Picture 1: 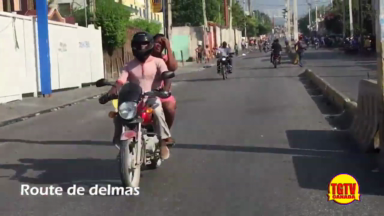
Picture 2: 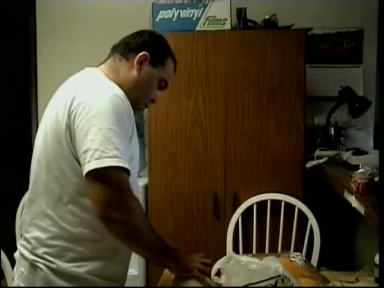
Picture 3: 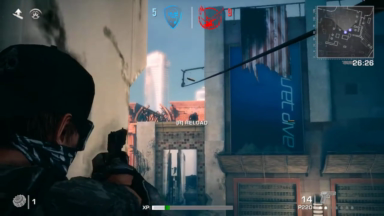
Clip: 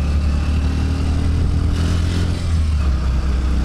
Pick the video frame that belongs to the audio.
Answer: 1